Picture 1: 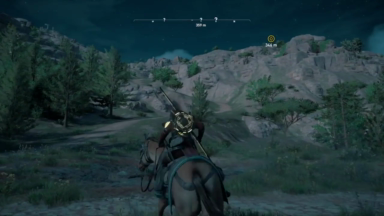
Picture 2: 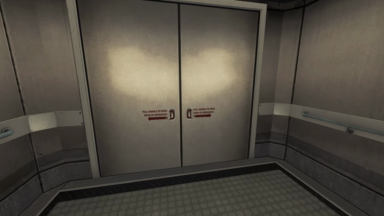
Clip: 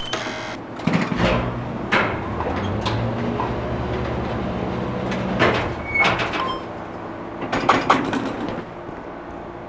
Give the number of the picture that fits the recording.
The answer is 2